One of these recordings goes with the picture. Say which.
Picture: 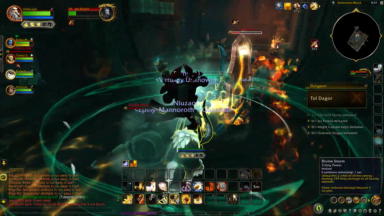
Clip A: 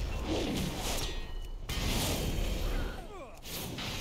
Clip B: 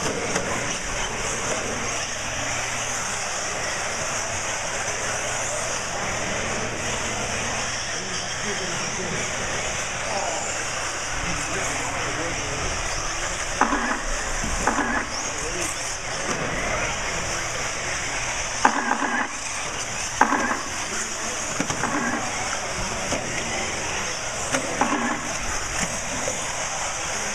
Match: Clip A